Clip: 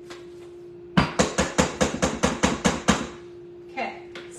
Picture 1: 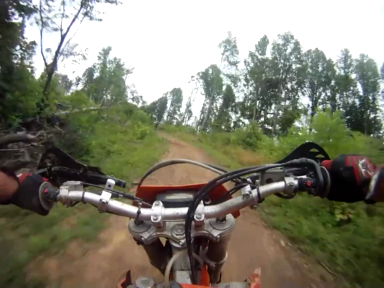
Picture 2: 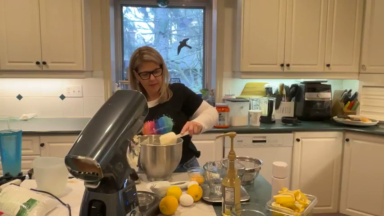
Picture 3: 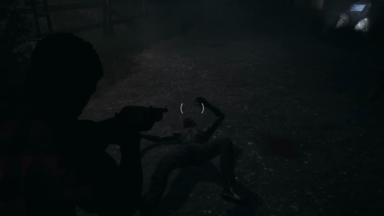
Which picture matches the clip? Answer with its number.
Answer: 2